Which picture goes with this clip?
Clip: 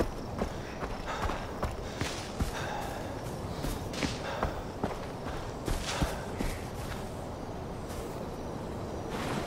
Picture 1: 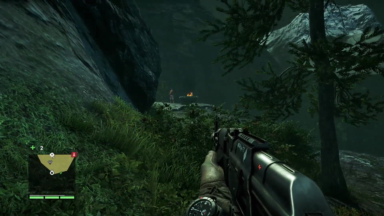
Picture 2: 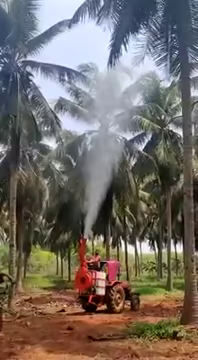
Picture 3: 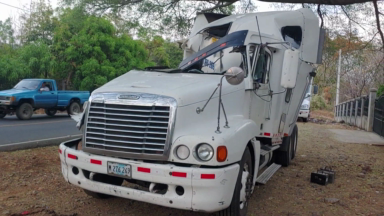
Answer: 1